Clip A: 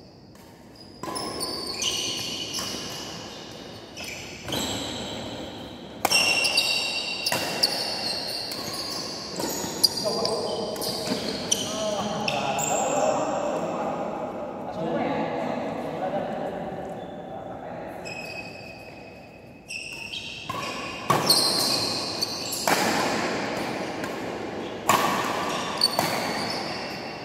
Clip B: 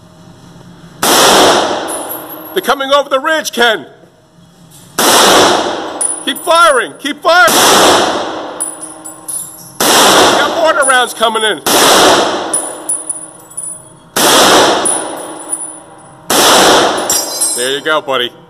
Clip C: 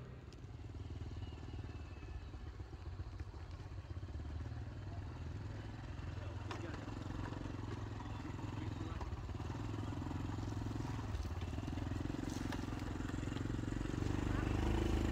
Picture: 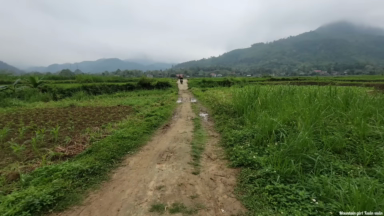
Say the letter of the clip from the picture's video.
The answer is C